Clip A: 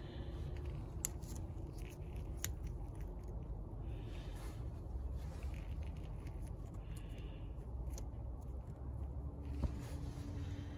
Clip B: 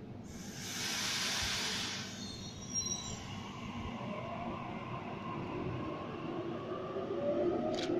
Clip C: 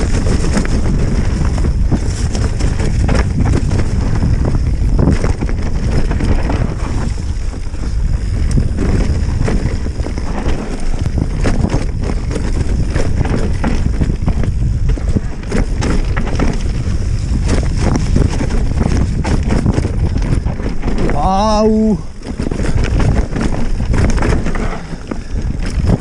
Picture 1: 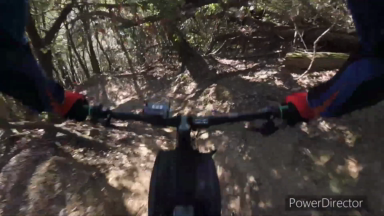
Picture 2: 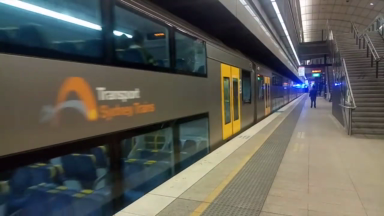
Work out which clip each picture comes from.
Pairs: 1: C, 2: B